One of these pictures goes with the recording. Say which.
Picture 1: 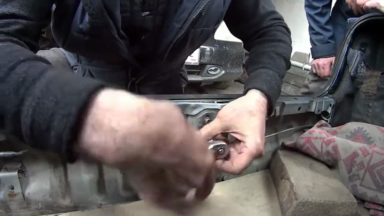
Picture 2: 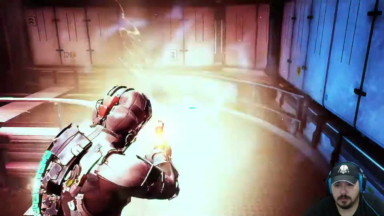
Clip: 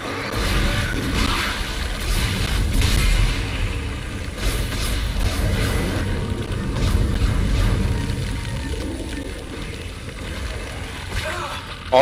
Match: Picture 2